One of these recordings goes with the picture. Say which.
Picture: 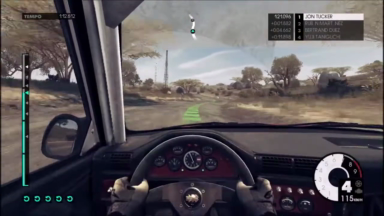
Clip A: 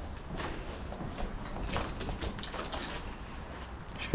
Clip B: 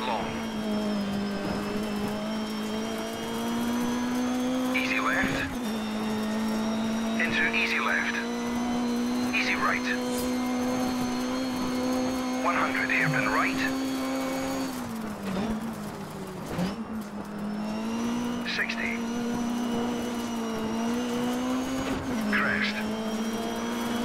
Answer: B